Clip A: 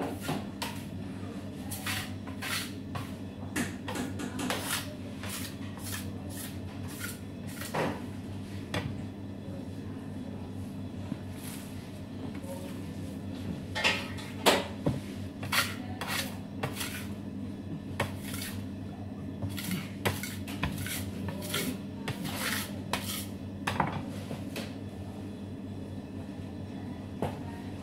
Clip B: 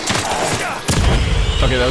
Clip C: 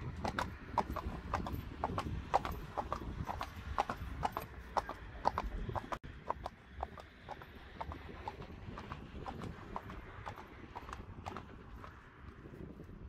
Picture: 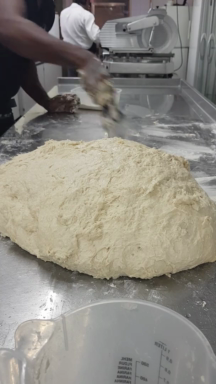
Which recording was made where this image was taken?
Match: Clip A